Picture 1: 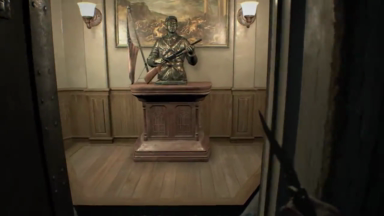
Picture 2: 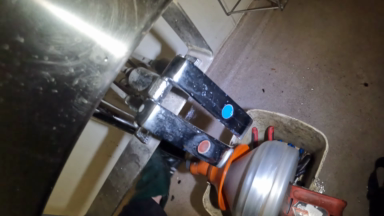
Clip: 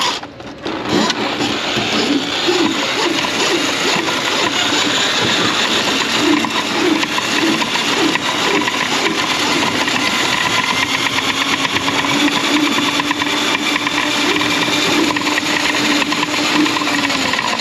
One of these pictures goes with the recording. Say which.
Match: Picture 2